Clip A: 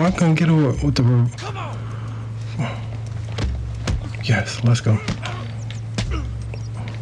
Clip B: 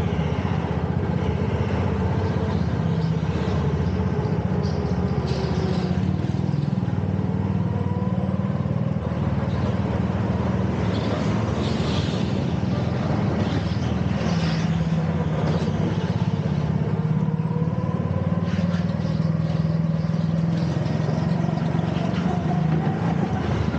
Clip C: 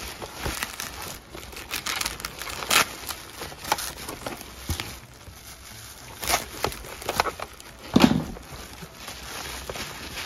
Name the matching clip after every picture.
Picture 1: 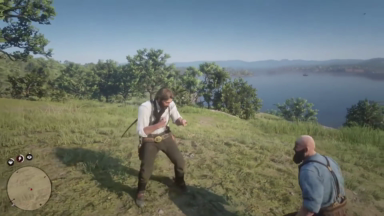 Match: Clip A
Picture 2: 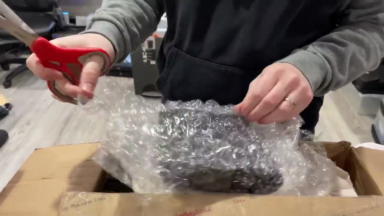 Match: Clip C